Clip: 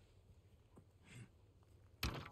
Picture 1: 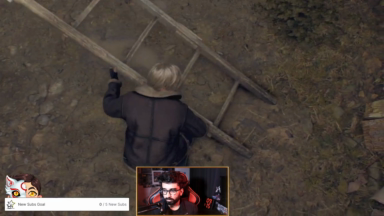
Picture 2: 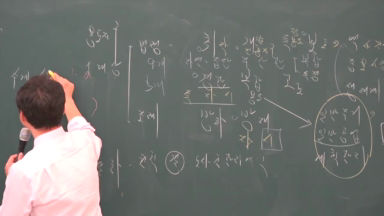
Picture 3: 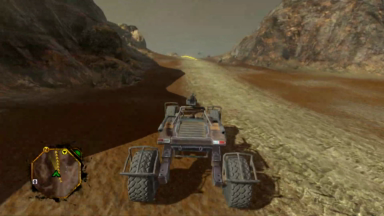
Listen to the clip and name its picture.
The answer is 1